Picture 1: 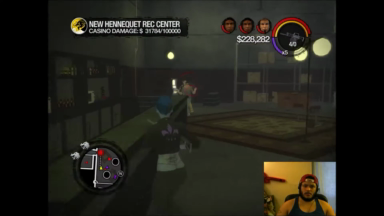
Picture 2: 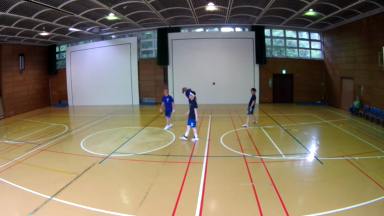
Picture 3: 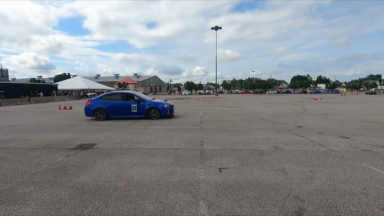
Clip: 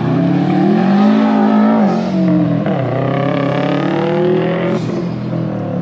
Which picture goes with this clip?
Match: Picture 3